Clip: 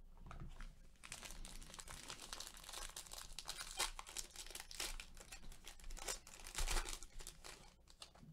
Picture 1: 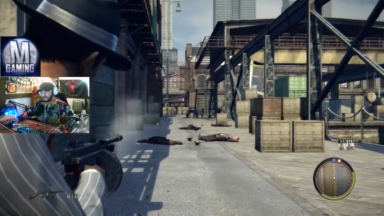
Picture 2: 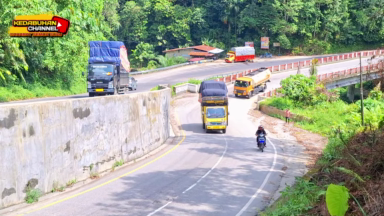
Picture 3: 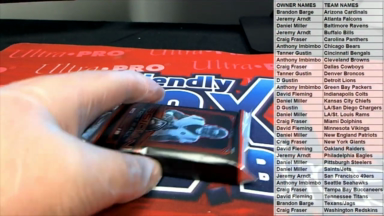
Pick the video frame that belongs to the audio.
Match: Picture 3